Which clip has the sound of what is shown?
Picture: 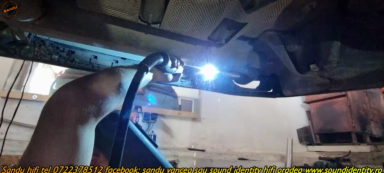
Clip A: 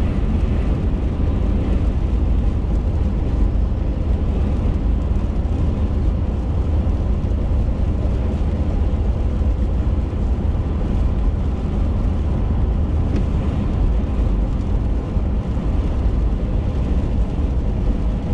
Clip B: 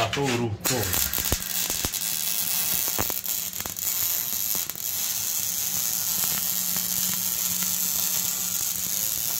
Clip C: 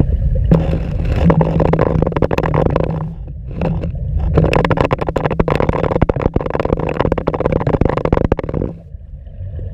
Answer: B